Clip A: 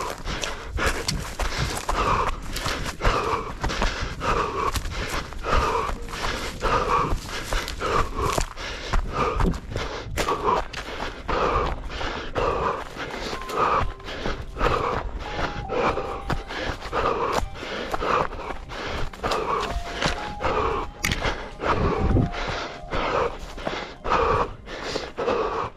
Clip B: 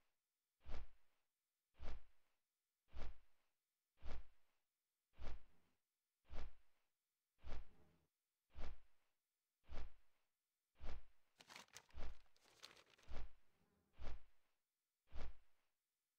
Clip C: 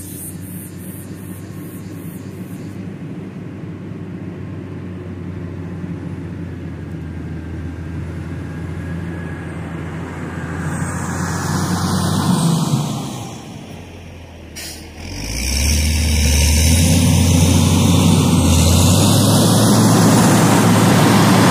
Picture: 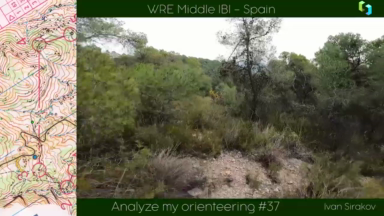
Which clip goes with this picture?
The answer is A